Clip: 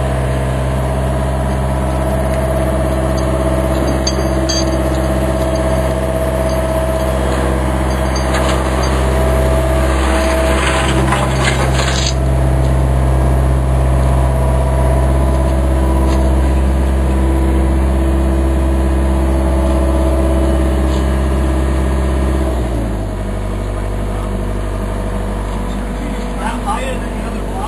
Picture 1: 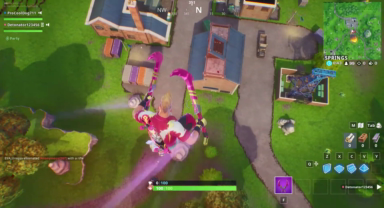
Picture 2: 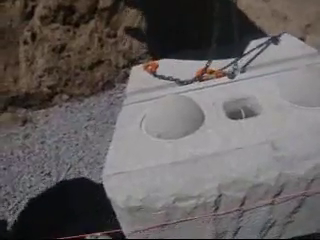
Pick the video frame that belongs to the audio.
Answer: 2